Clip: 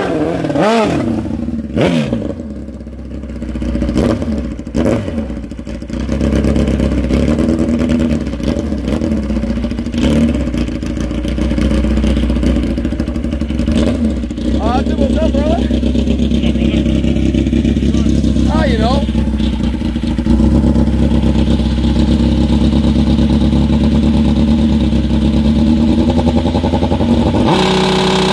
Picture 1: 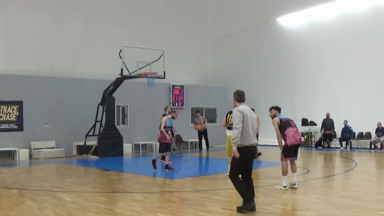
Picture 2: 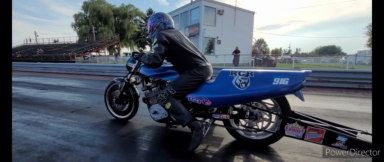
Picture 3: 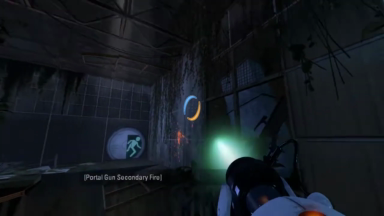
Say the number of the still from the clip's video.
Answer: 2